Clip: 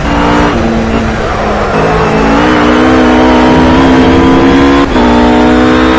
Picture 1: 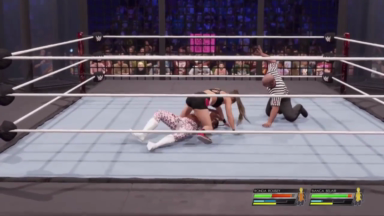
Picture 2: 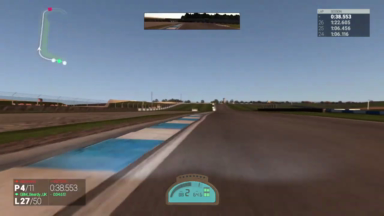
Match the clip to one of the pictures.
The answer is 2